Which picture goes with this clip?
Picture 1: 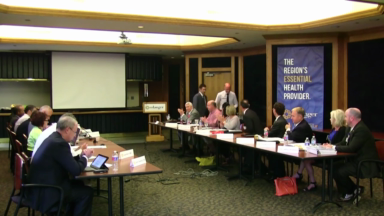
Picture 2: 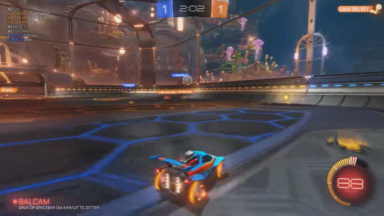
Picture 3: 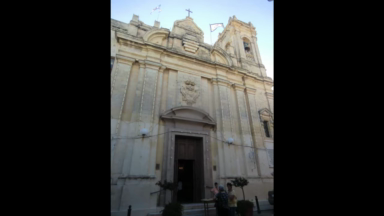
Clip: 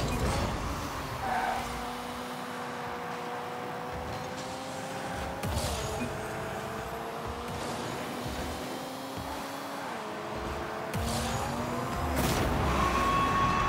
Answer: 2